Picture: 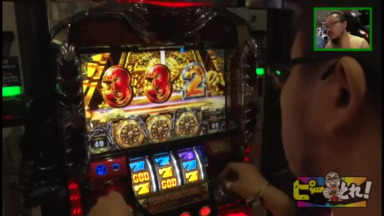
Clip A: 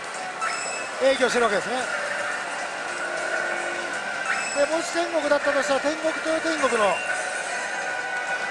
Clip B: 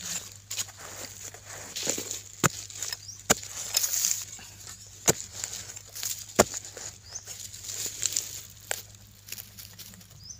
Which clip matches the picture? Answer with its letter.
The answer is A